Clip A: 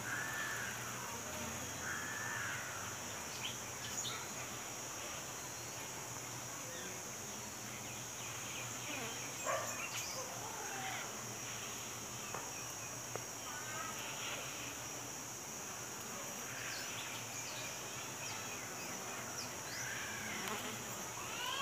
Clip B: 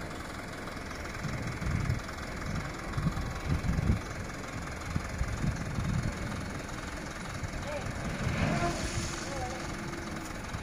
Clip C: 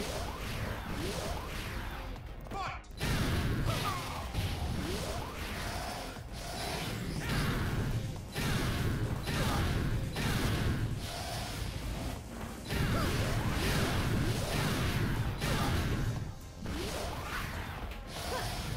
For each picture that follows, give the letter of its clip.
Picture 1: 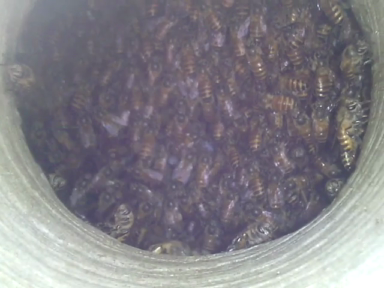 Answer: A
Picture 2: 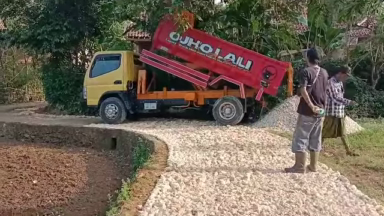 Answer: B